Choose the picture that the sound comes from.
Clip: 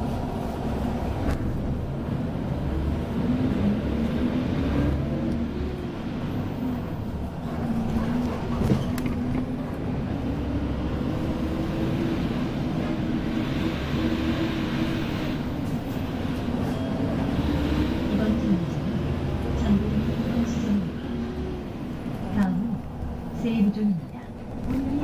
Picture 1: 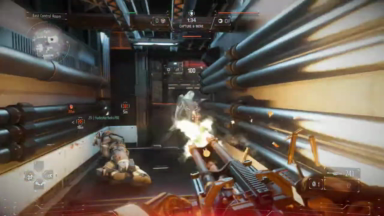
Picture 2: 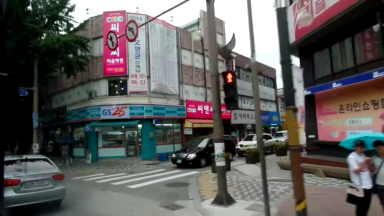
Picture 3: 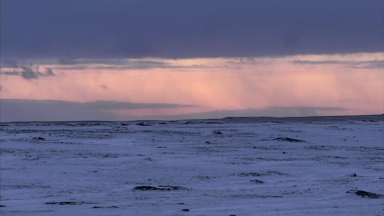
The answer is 2